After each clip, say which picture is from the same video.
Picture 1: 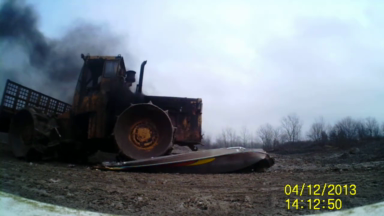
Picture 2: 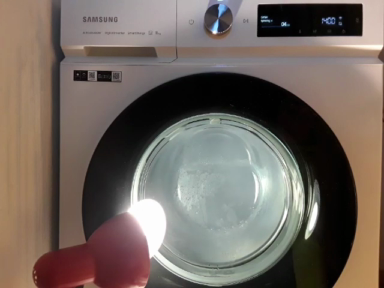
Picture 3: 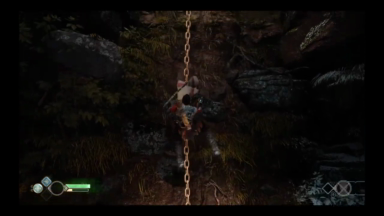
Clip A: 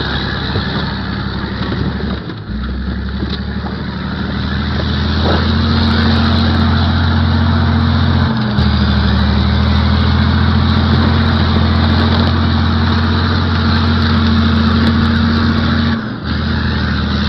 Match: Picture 1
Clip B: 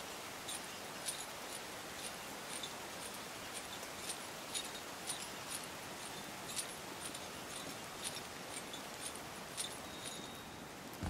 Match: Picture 3